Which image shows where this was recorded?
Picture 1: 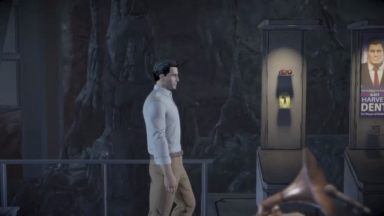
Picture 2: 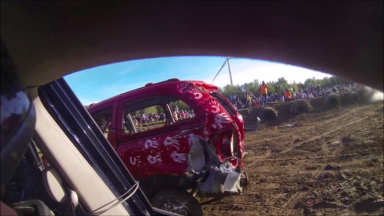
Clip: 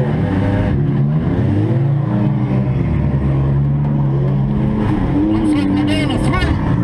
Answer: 2